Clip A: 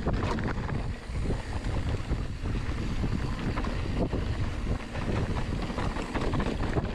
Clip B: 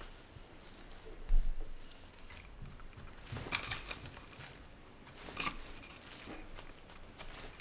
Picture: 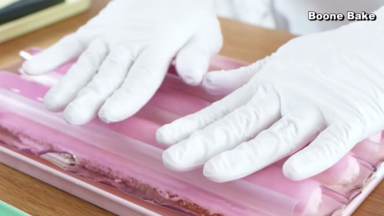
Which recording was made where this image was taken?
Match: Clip B